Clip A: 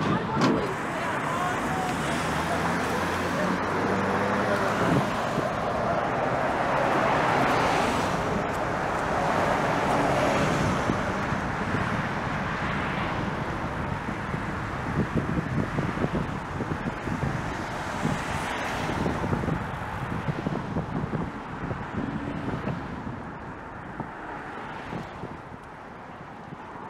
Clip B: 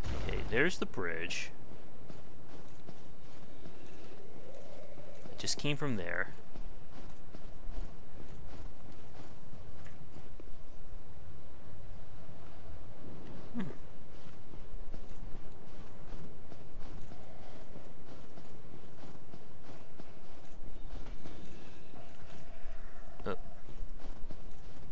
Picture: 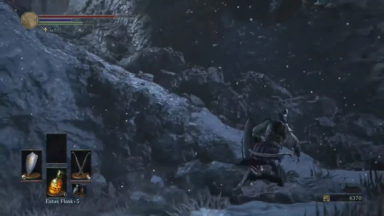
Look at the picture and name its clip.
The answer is B